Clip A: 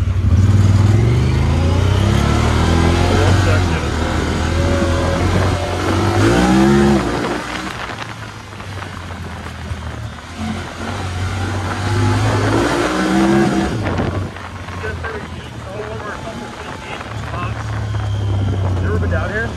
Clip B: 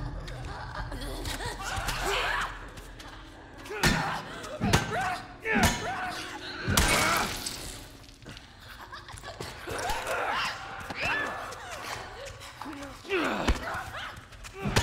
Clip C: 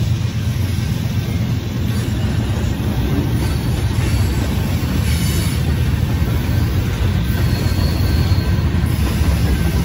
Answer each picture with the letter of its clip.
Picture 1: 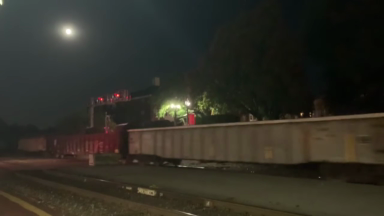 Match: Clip C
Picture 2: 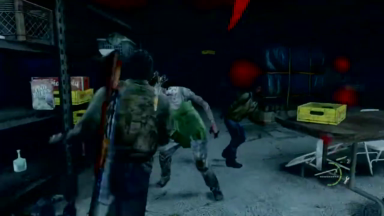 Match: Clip B